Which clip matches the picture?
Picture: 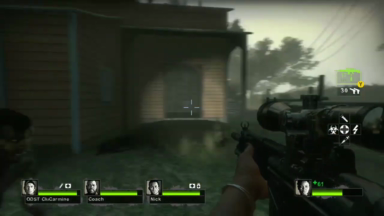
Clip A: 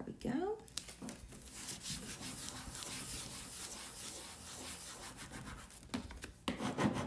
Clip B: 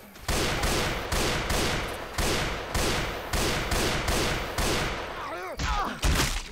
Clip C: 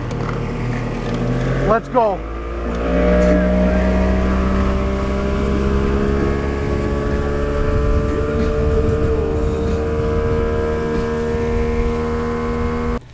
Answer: B